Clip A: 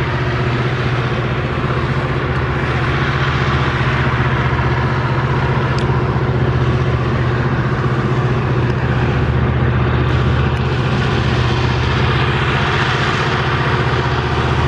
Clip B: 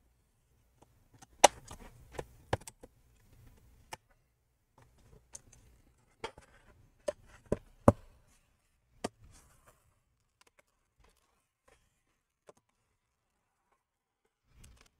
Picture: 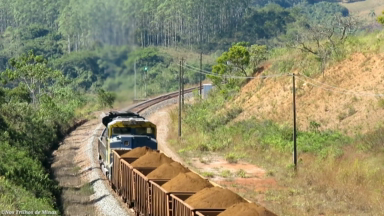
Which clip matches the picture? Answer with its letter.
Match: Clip A